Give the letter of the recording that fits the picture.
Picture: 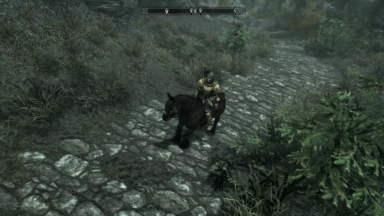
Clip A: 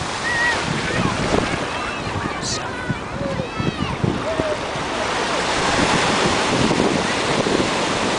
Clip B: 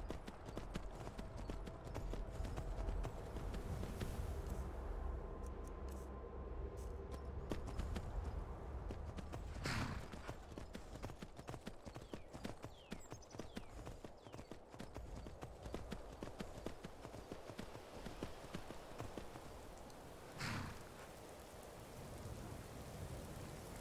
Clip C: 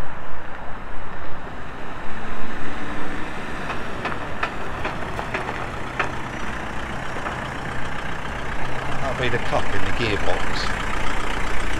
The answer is B